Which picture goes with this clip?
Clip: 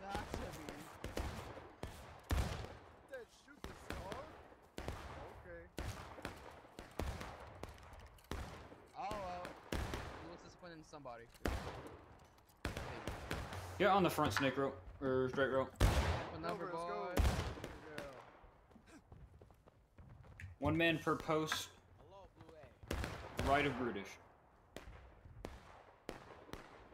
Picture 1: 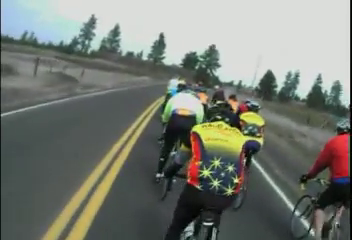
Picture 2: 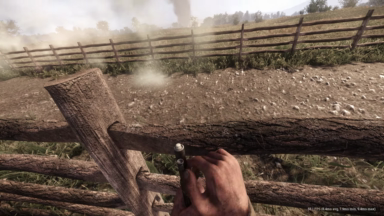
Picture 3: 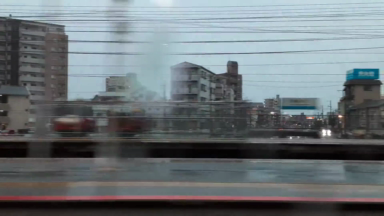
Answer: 2